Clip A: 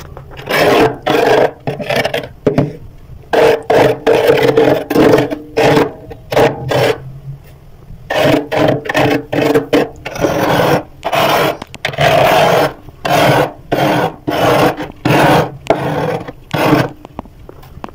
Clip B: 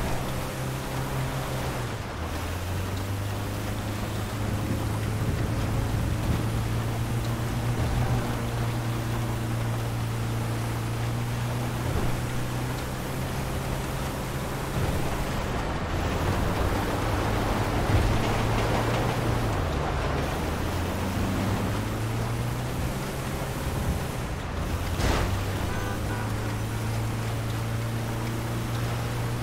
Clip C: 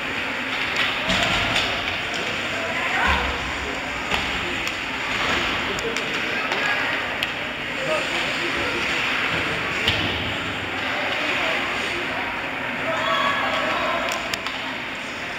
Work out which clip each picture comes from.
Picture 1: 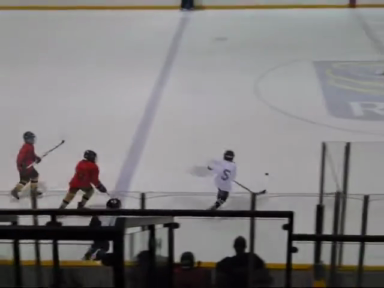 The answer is C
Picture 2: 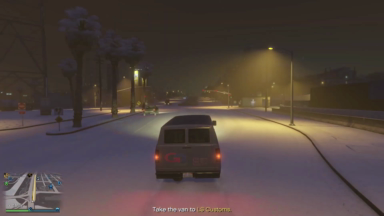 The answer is B